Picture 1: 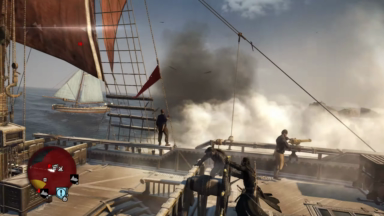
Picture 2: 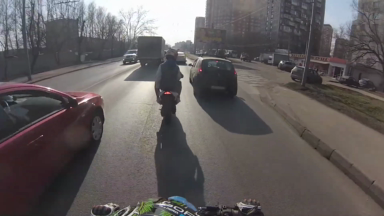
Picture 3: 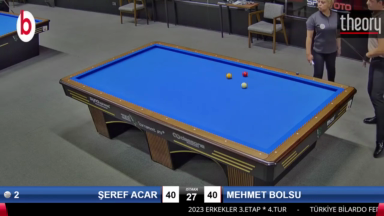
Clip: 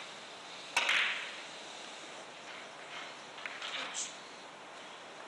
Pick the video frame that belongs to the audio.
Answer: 3